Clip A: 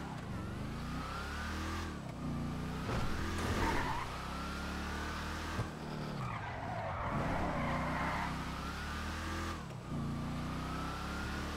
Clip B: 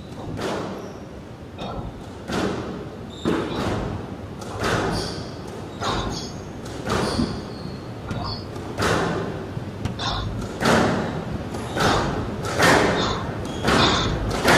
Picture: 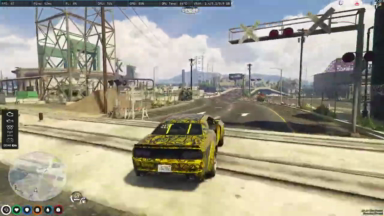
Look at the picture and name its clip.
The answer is A